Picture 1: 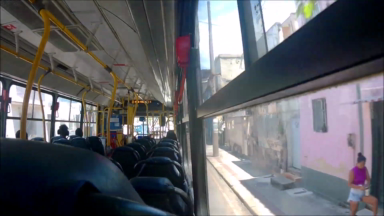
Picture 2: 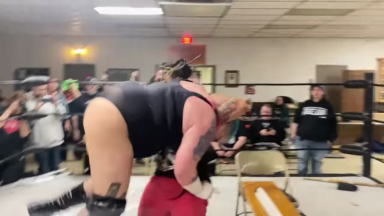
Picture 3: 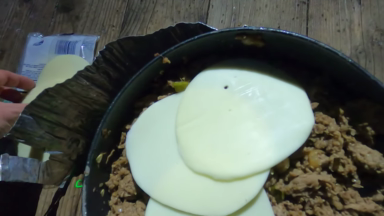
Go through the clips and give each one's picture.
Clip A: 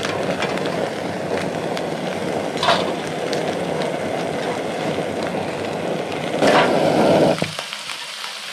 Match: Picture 3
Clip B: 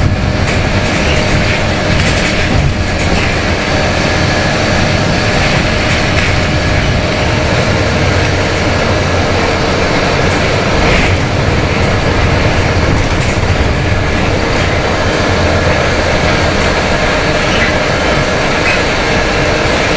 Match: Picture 1